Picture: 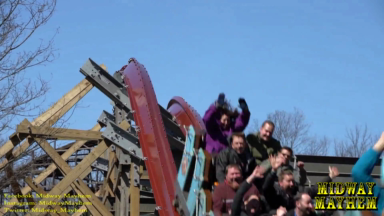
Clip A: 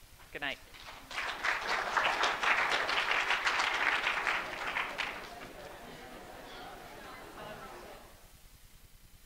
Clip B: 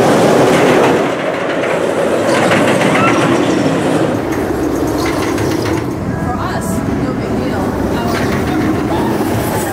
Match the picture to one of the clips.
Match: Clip B